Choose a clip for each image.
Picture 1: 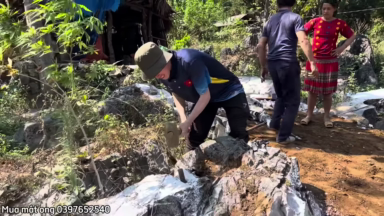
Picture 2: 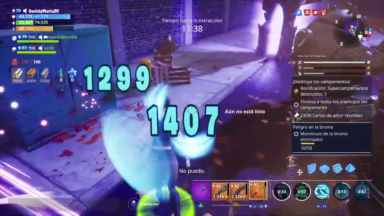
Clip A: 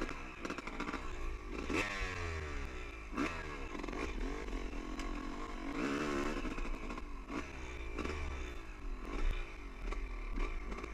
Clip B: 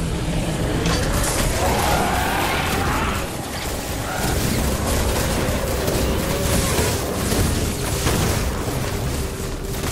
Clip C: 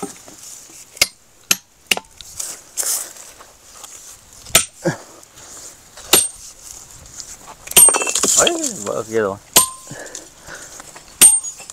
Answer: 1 C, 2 B